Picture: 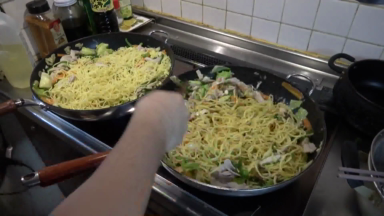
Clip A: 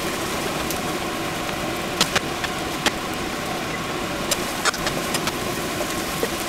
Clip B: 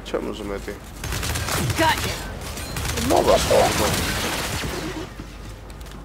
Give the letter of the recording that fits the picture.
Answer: A